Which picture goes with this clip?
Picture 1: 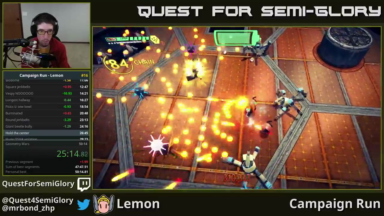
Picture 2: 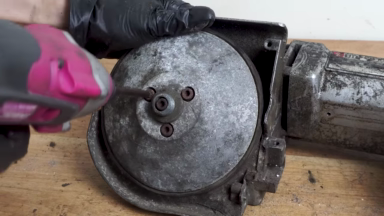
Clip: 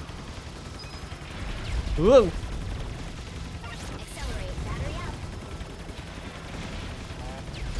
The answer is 1